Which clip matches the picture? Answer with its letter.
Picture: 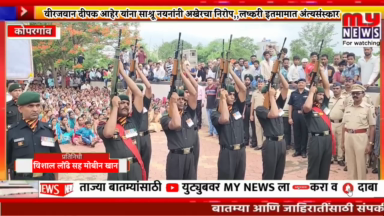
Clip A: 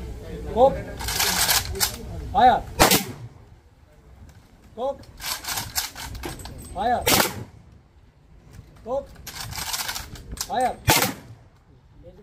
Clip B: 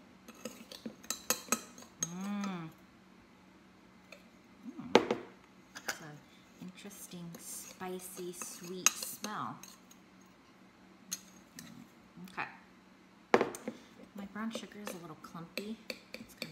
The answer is A